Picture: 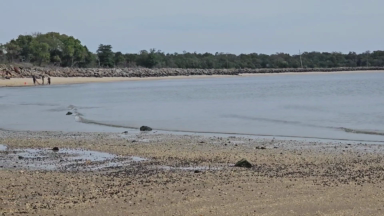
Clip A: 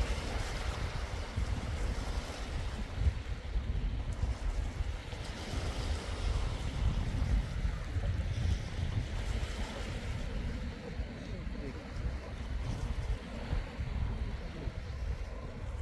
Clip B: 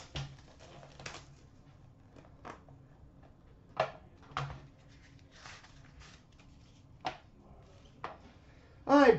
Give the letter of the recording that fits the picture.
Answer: A